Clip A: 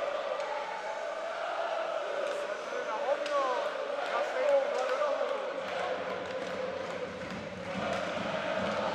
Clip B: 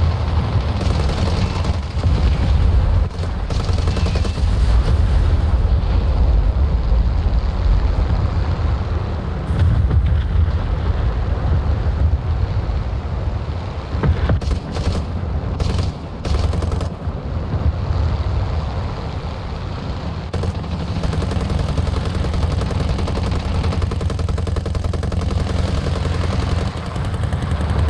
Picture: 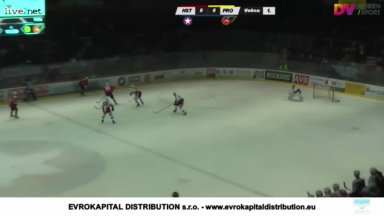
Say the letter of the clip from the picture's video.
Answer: A